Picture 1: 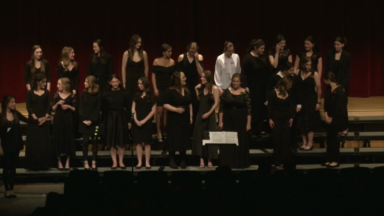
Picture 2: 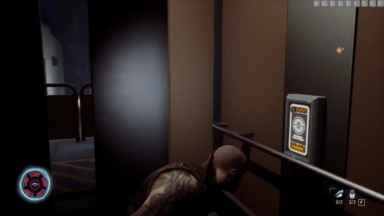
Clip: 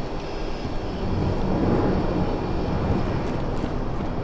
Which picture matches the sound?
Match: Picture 2